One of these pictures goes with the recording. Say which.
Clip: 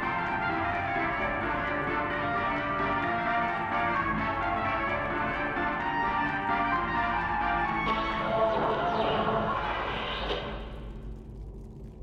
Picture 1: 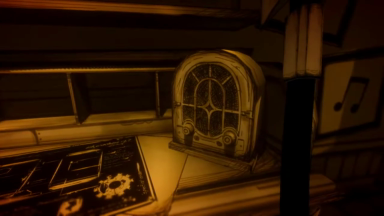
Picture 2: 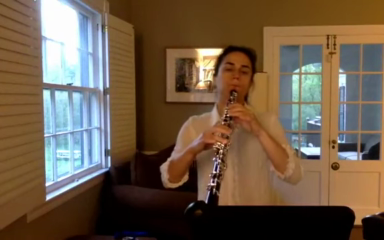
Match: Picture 1